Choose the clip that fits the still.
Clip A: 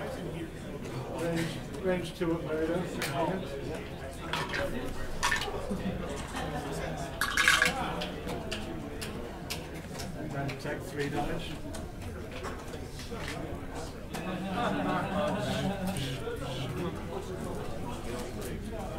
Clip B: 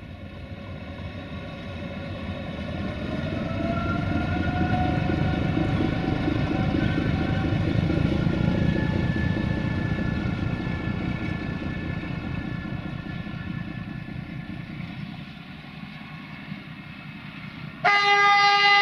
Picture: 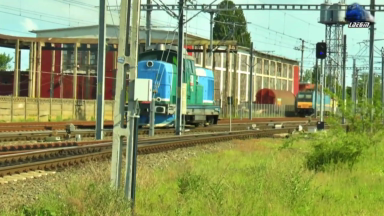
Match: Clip B